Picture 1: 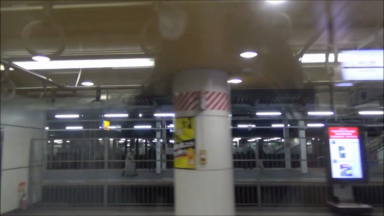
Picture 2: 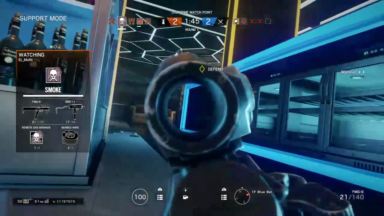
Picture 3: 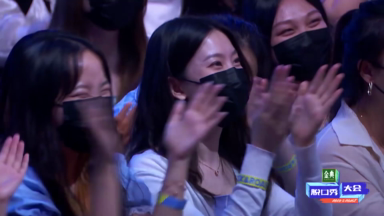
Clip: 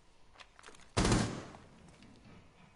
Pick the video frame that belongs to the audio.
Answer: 2